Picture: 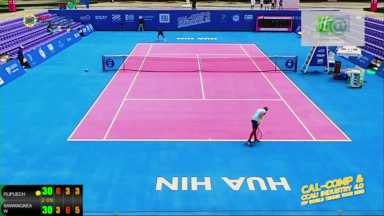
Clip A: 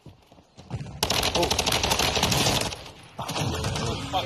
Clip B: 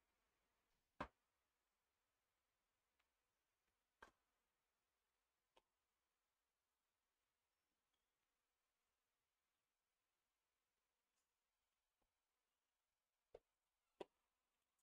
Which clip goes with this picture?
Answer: B